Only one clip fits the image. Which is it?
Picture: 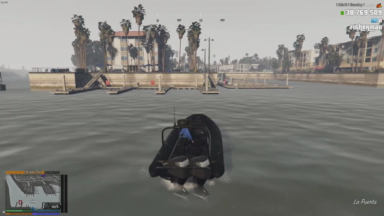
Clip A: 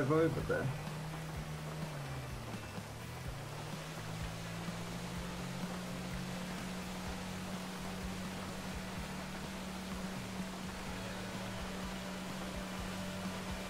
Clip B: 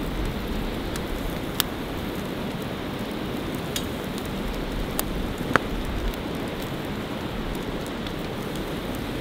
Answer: A